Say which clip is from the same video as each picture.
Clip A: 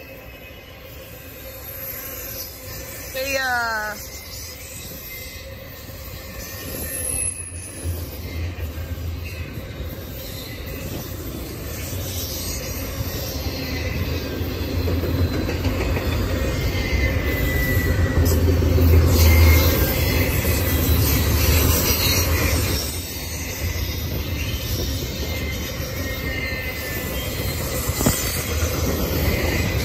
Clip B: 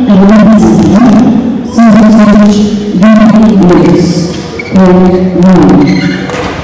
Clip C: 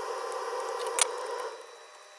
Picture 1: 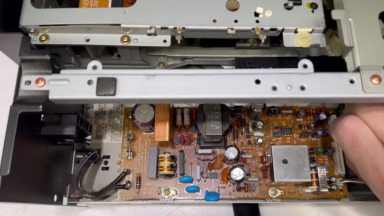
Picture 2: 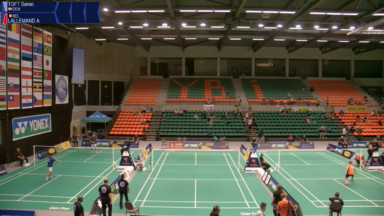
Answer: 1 C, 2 B